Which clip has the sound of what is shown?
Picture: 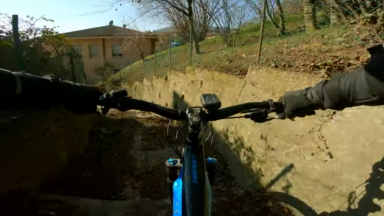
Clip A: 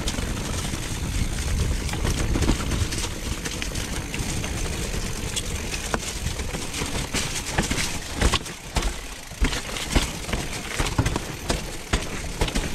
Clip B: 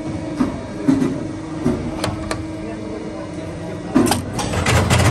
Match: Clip A